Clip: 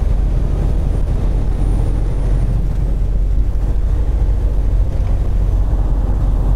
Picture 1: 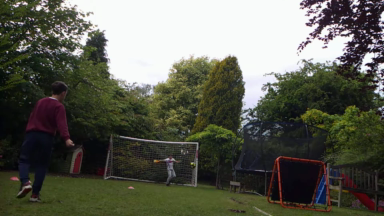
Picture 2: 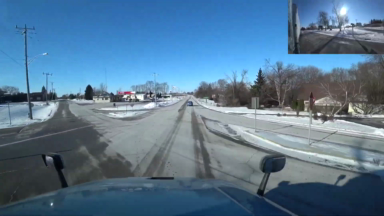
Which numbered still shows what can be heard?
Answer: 2